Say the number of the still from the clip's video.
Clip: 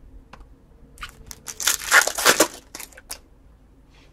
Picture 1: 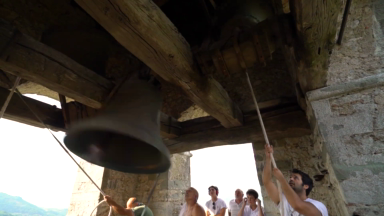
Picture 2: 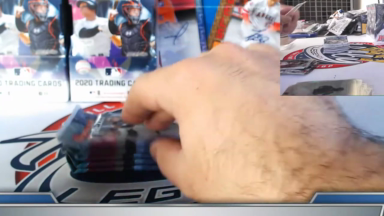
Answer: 2